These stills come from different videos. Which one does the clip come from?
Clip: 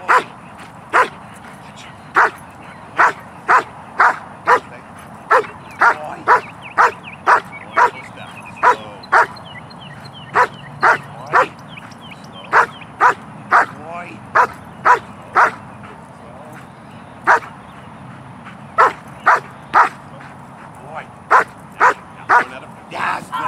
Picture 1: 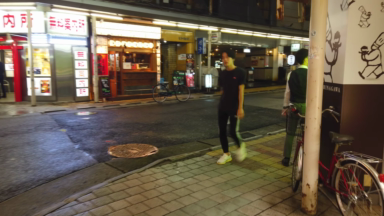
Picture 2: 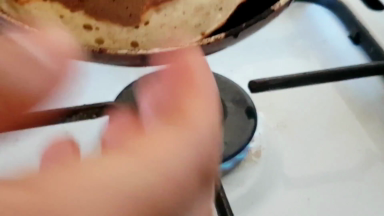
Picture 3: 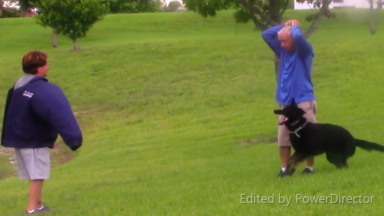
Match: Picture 3